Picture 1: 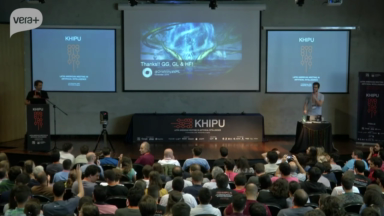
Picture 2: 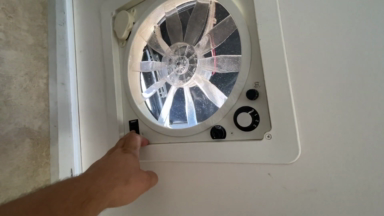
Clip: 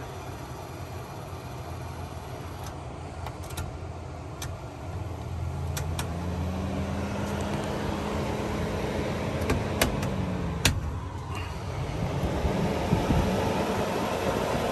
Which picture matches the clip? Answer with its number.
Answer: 2